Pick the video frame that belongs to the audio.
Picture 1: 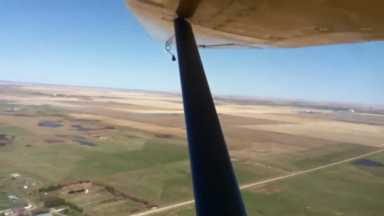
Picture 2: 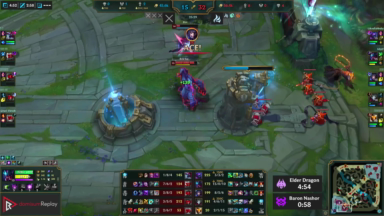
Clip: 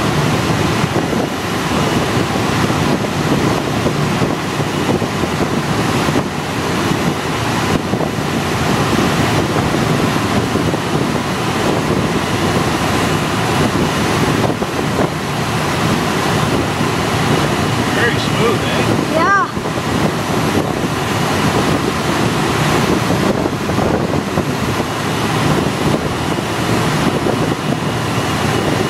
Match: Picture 1